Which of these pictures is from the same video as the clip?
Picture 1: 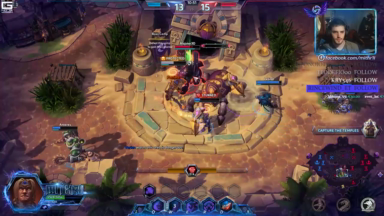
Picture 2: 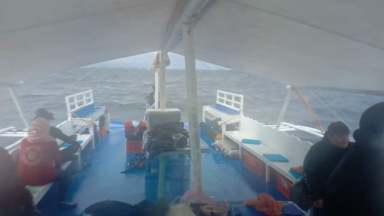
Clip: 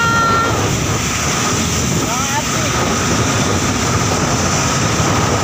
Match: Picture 2